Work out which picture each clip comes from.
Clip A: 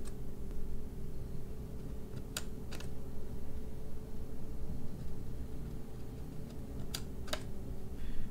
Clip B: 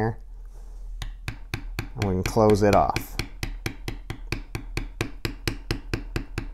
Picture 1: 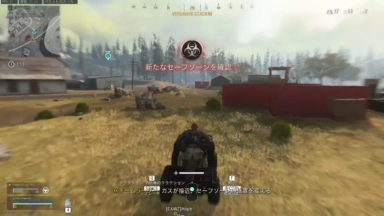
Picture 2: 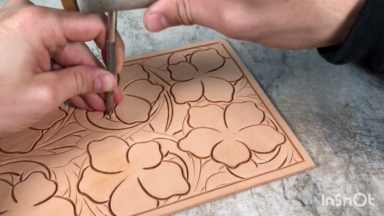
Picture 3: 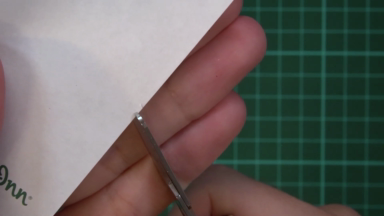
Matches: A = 3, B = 2